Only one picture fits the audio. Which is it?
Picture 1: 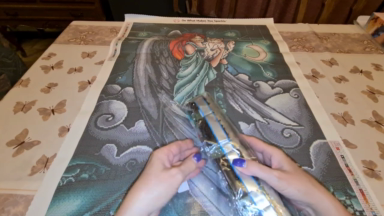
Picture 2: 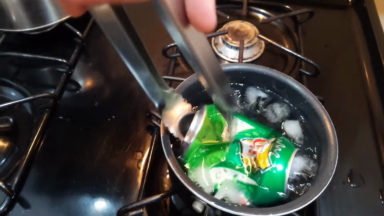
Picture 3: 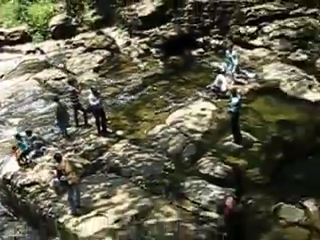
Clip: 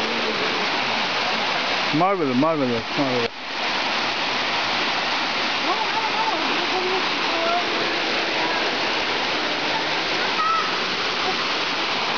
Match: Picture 3